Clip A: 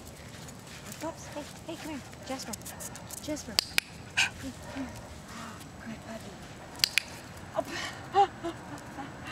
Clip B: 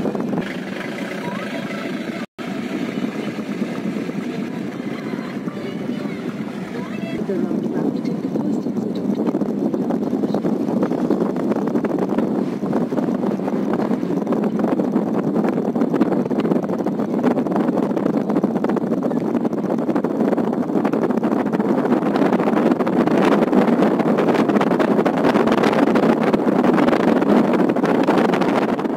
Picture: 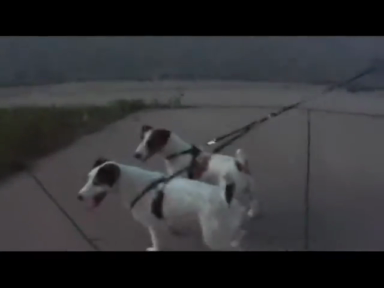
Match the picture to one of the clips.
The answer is A